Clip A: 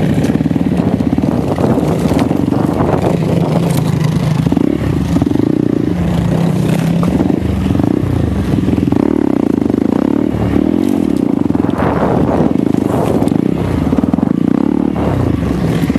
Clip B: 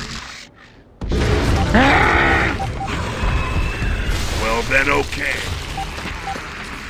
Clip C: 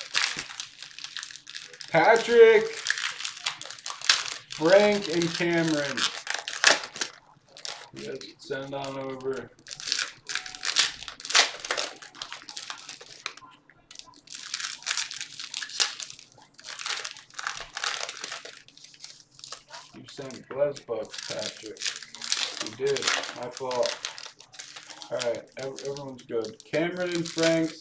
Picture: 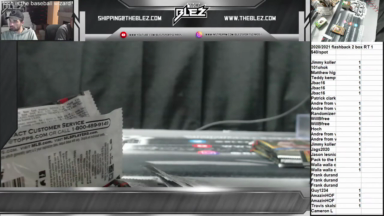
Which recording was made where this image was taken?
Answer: C